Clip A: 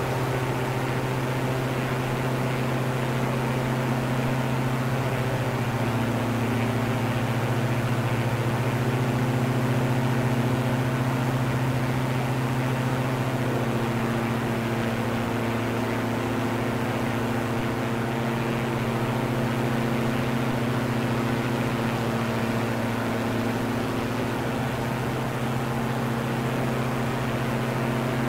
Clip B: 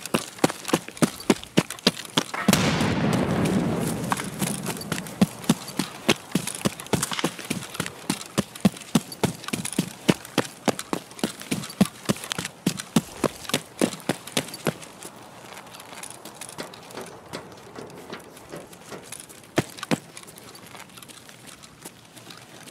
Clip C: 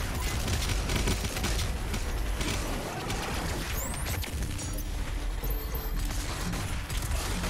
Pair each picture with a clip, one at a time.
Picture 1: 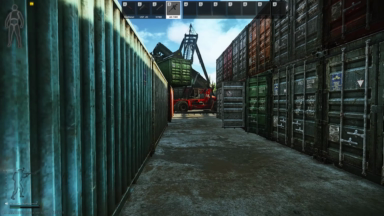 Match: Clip B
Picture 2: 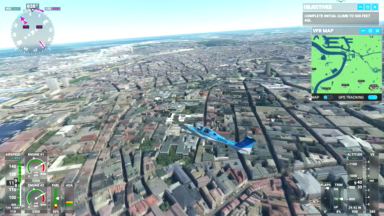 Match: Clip A